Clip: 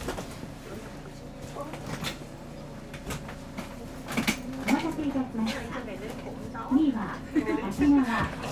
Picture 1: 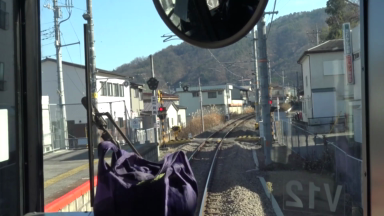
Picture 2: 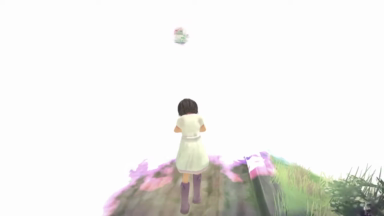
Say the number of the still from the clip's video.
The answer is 1